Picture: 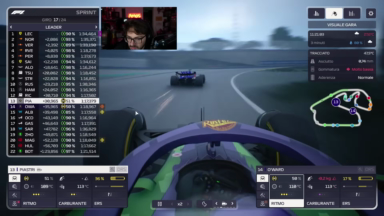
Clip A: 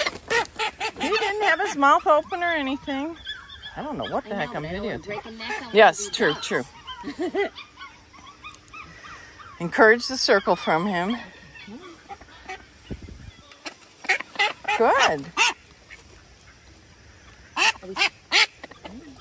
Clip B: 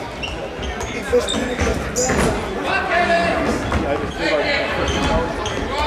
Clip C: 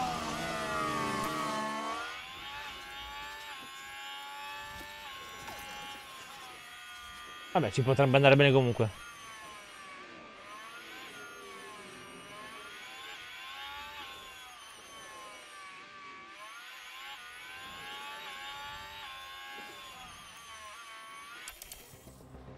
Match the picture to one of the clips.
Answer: C